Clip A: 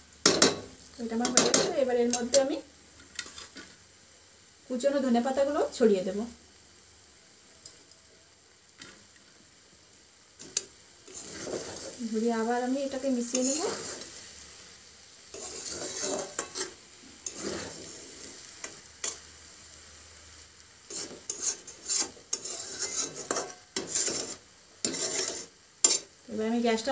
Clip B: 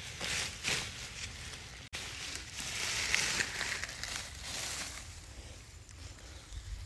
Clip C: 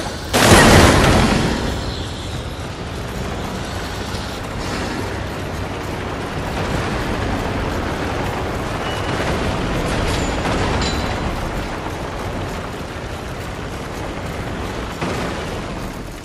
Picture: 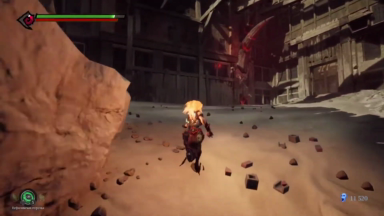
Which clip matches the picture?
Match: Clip C